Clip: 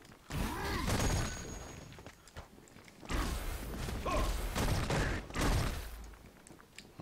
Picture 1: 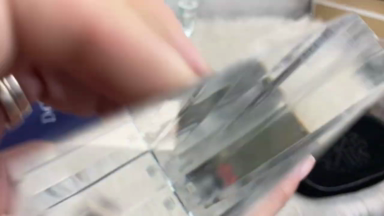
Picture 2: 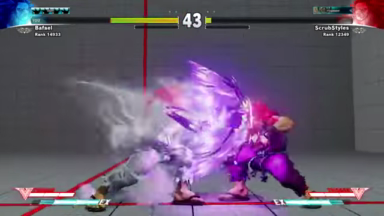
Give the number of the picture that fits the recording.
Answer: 2